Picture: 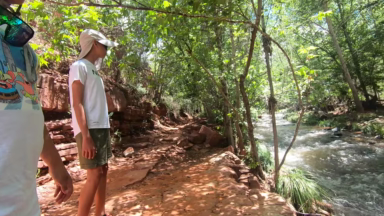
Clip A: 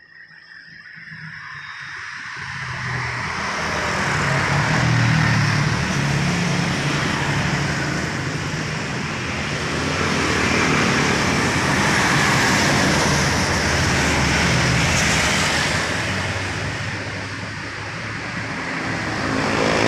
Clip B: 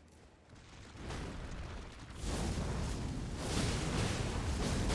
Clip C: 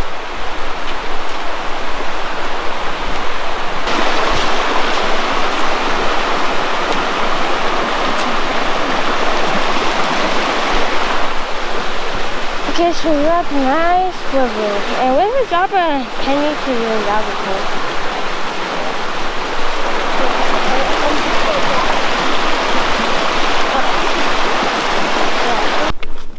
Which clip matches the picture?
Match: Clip C